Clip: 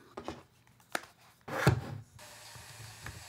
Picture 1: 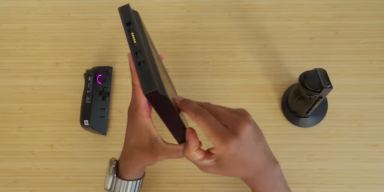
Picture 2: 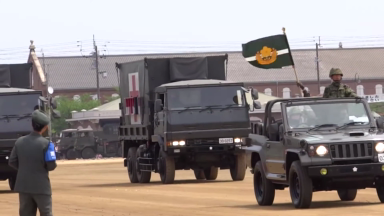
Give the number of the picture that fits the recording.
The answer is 1